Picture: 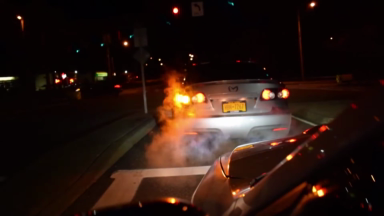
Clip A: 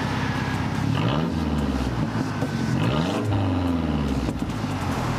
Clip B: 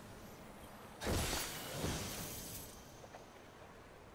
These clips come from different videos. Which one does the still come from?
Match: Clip A